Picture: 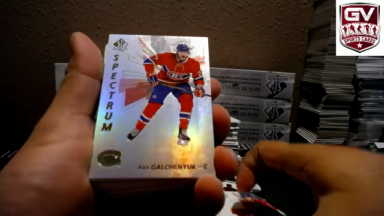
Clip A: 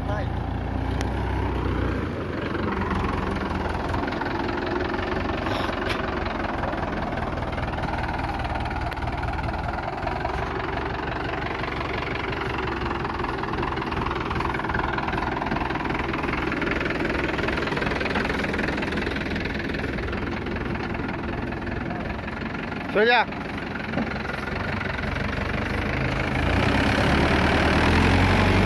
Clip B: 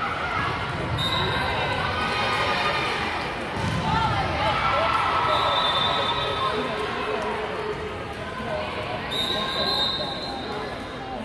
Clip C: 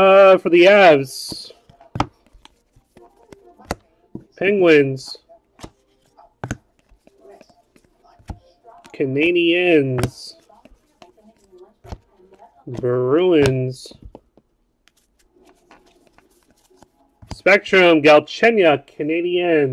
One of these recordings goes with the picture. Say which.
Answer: C